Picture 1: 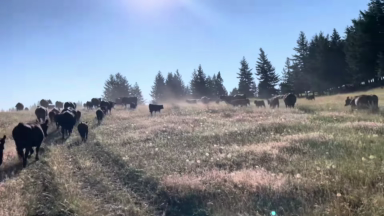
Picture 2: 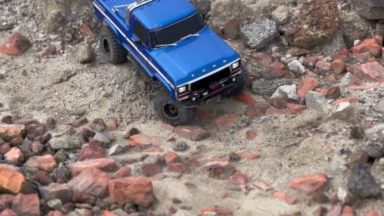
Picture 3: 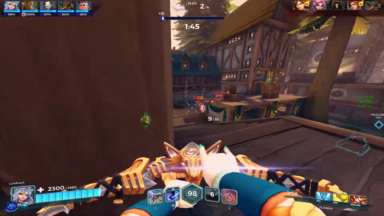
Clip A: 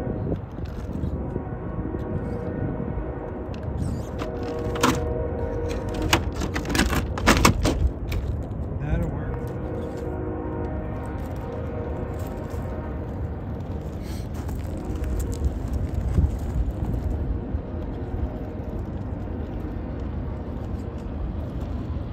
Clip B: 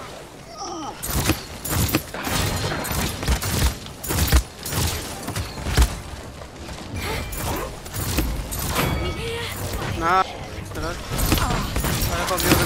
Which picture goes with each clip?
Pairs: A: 2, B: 3